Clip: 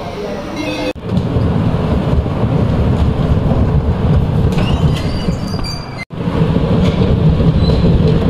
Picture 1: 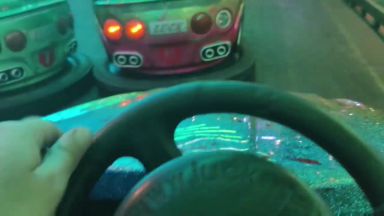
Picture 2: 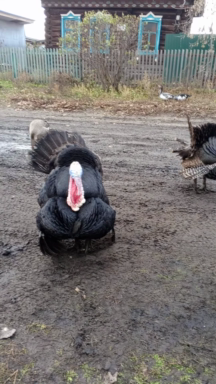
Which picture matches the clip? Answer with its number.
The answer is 1